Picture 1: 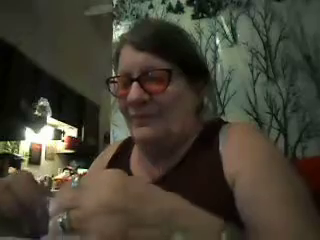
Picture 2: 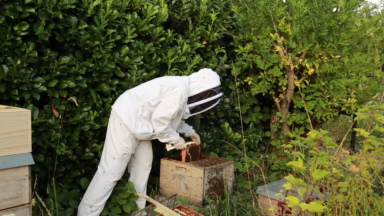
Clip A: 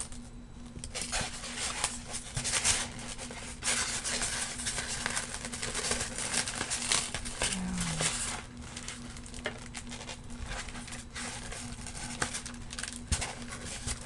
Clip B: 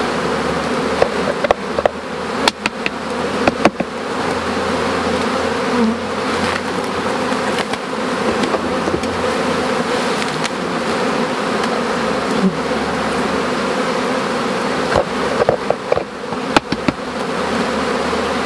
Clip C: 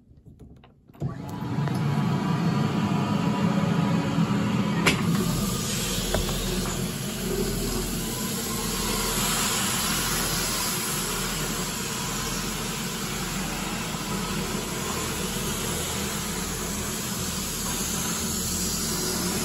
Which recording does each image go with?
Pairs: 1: A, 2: B